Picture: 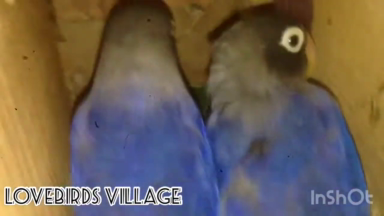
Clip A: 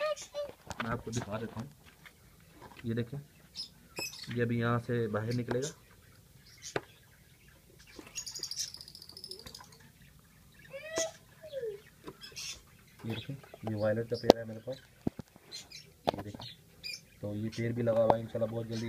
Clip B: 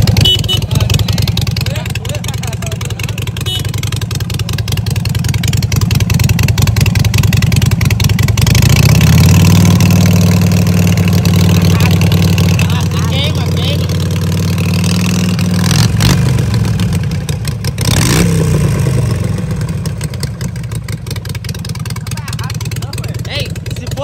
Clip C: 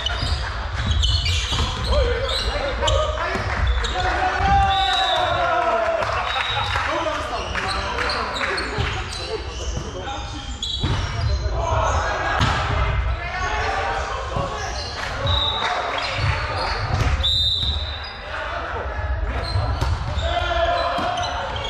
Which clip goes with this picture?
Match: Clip A